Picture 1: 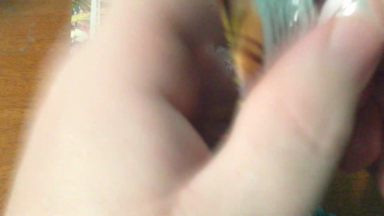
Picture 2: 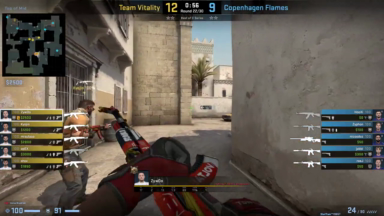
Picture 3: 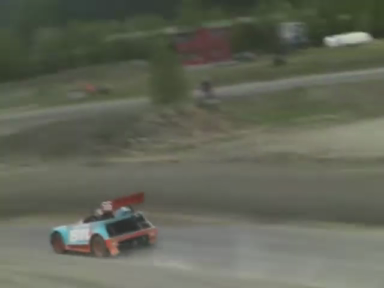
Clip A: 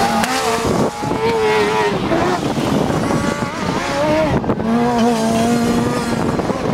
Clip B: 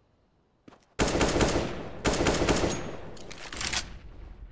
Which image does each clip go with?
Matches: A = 3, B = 2